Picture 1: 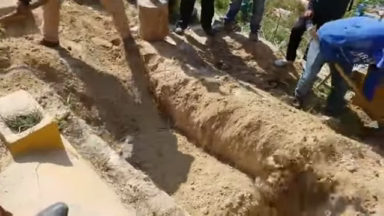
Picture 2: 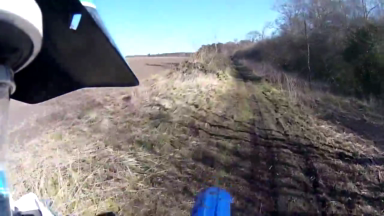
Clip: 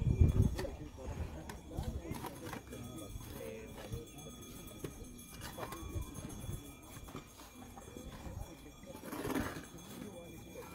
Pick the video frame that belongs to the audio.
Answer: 1